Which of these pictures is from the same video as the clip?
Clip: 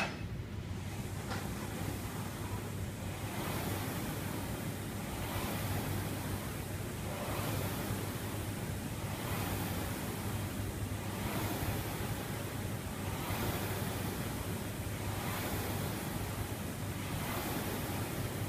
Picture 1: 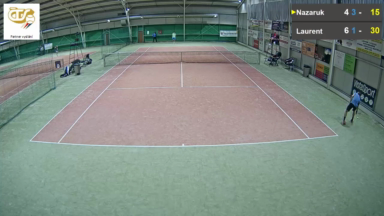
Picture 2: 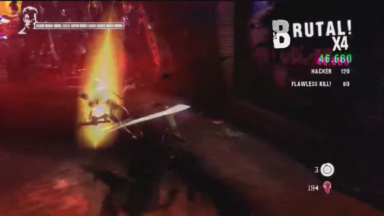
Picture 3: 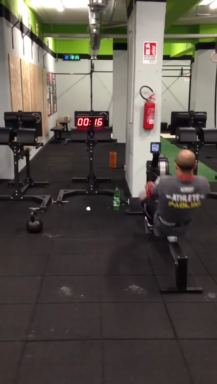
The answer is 3